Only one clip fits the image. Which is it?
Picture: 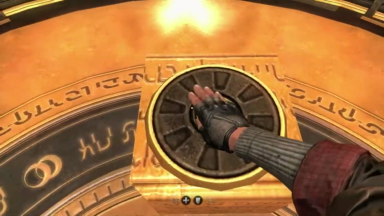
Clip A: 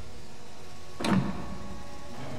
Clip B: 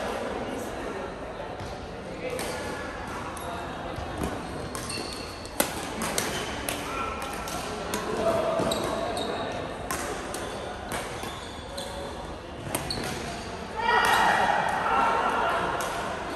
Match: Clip A